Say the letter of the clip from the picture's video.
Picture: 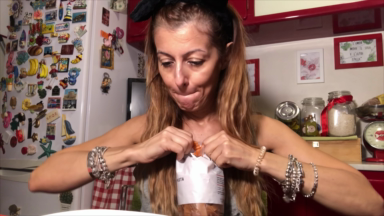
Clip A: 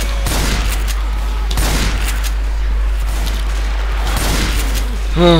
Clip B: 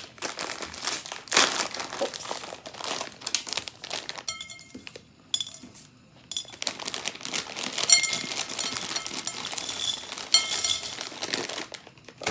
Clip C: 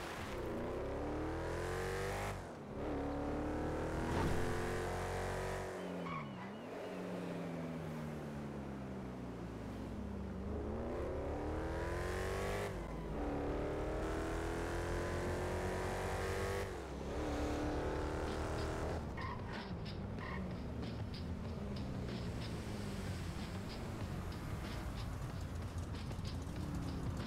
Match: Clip B